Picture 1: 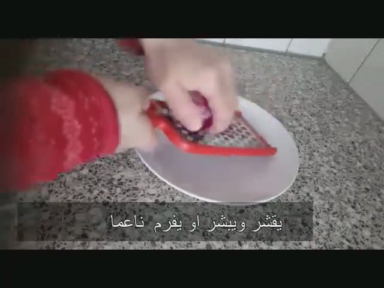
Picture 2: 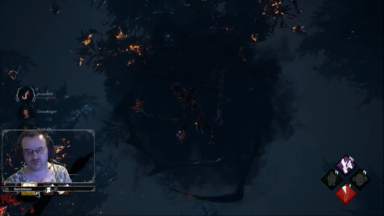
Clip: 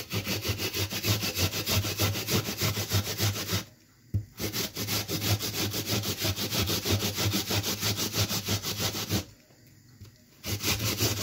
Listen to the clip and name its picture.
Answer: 1